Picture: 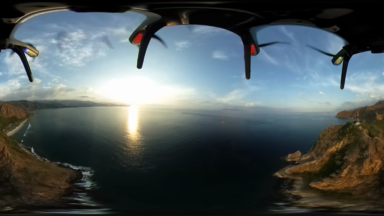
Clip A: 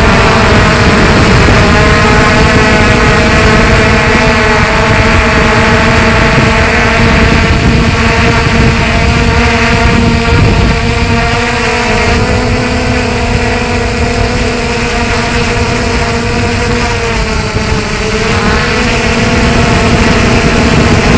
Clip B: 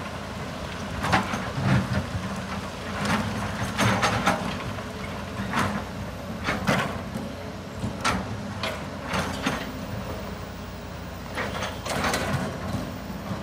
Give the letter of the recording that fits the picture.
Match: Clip A